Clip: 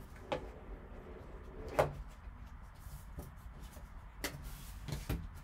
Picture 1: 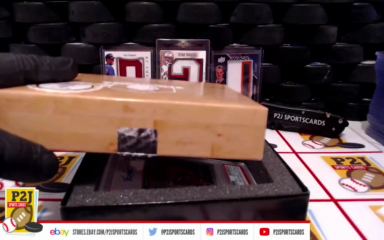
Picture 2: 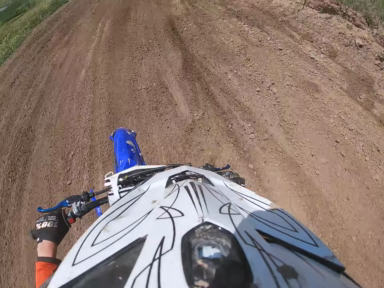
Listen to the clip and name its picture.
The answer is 1